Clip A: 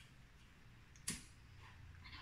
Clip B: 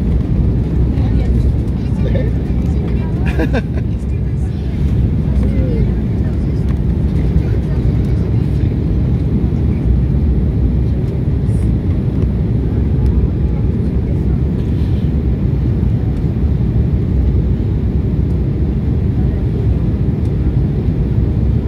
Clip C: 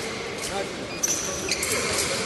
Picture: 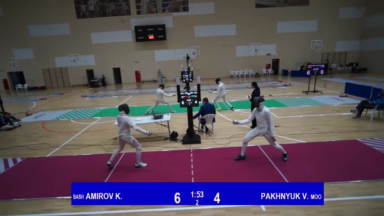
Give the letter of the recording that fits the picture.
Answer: C